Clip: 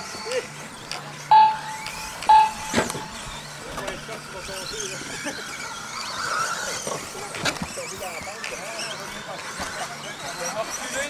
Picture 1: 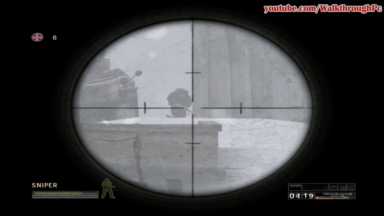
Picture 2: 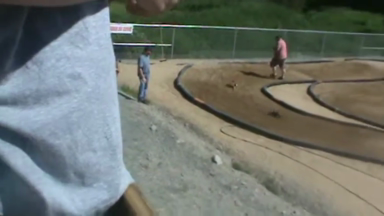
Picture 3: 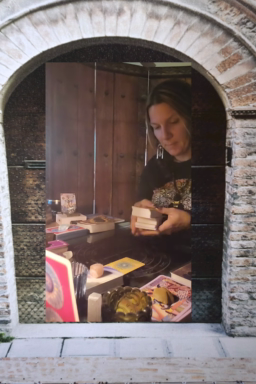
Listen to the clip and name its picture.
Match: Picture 2